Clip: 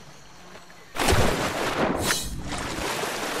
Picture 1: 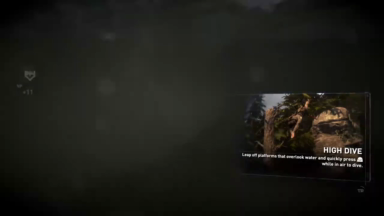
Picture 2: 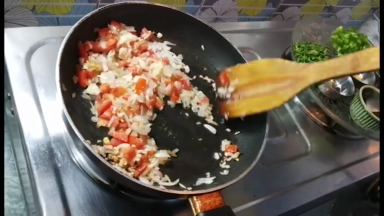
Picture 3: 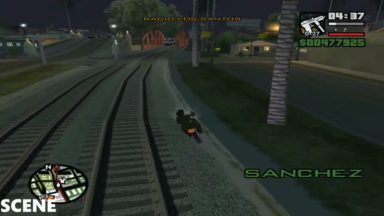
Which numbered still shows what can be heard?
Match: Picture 1